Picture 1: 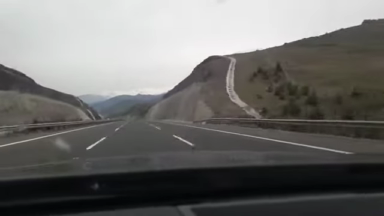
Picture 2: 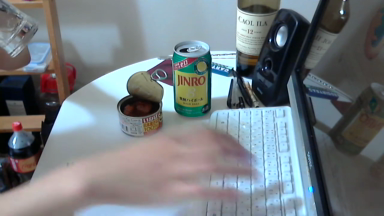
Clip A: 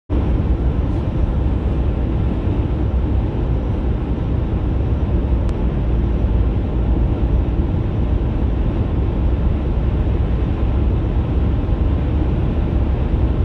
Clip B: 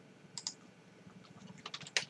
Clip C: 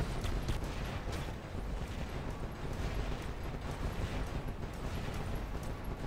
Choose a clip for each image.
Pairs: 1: A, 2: B